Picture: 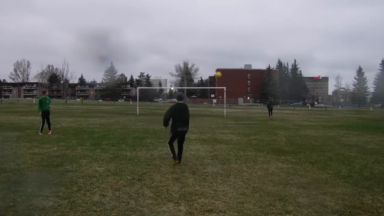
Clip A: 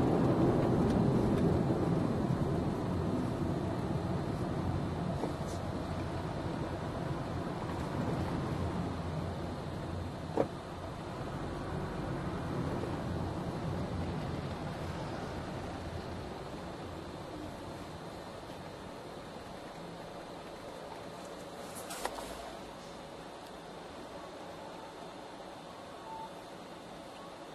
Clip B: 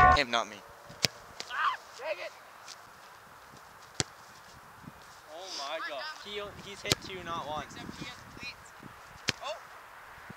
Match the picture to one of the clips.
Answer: B